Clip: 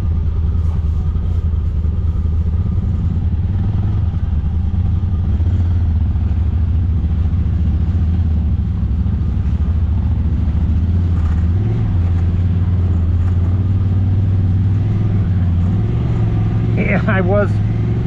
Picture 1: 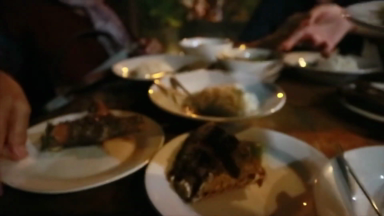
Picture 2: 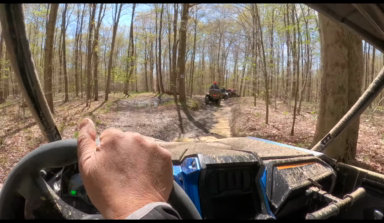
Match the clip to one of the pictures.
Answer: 2